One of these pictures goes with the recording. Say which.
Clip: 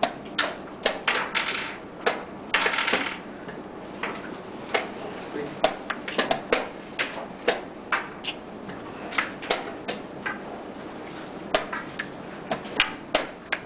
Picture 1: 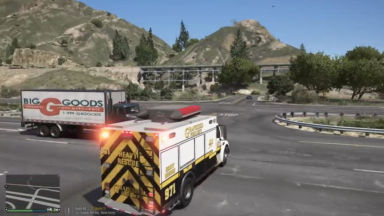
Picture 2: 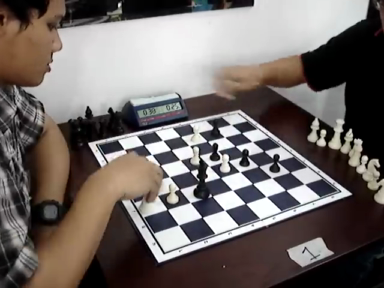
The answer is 2